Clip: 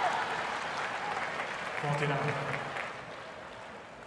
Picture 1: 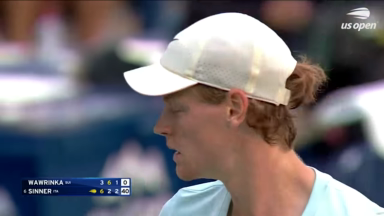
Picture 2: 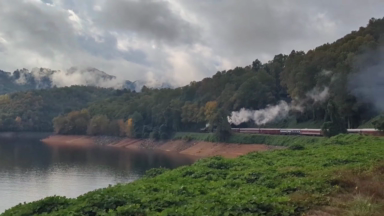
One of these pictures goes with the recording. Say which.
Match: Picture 1